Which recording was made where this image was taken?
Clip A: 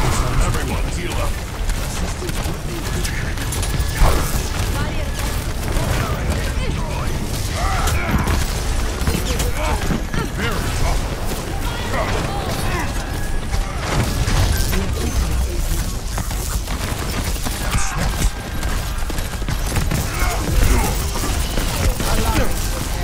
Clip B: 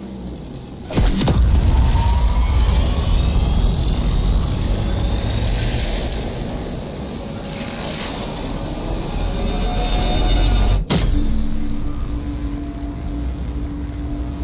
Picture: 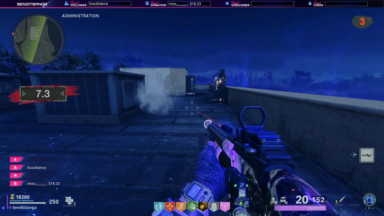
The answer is B